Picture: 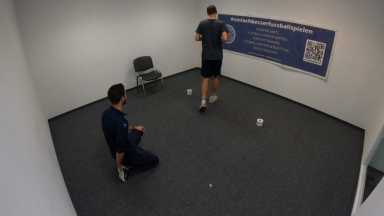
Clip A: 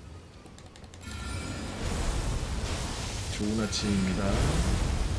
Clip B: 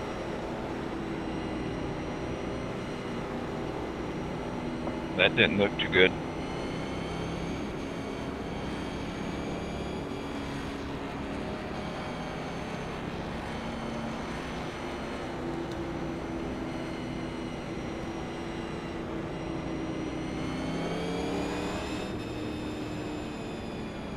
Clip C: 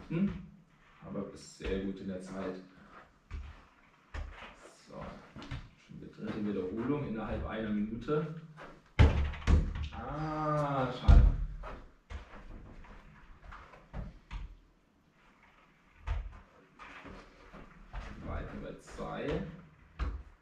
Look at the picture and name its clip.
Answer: C